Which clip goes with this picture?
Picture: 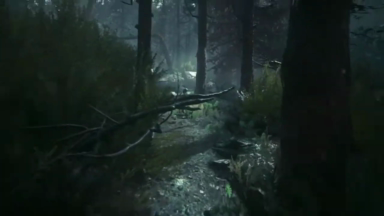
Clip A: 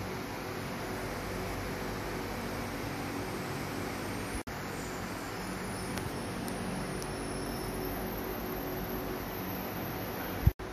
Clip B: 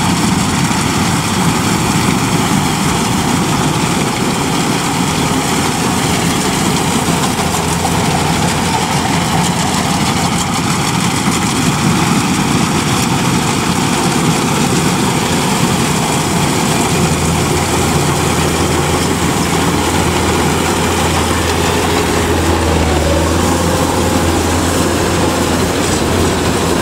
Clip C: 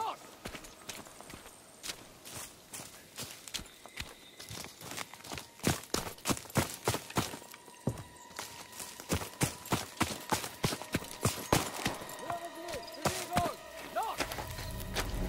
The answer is C